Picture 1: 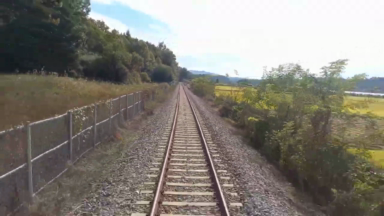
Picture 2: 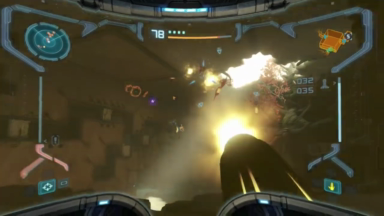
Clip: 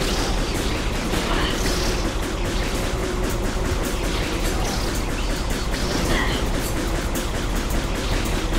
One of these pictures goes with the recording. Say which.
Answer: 2